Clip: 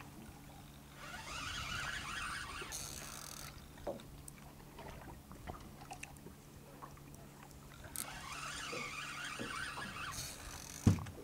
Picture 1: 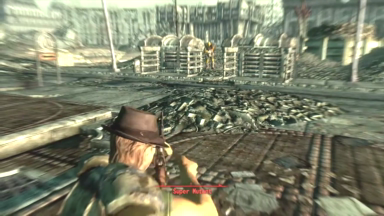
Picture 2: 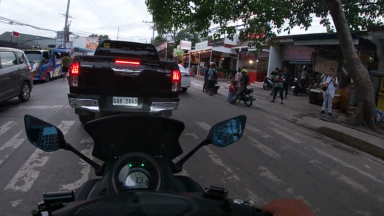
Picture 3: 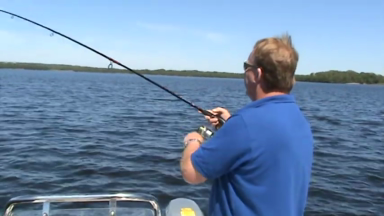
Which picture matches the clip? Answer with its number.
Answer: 3